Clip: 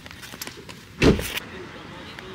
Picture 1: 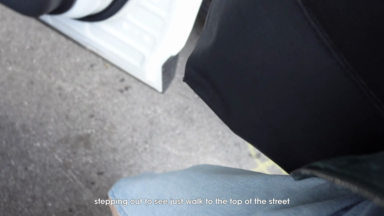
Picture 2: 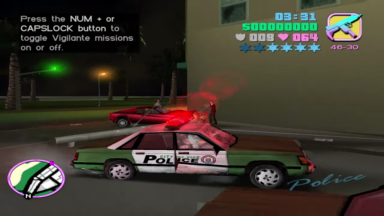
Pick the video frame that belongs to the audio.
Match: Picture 1